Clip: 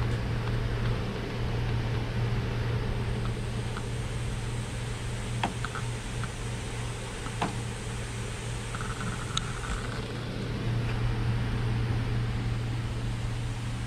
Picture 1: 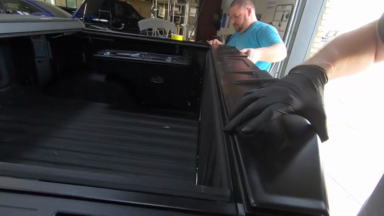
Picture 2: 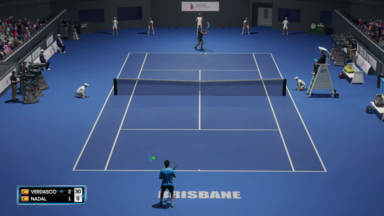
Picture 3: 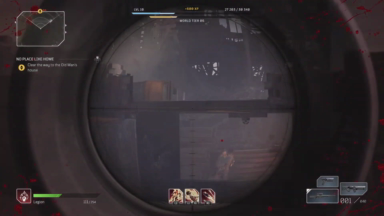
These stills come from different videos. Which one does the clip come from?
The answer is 1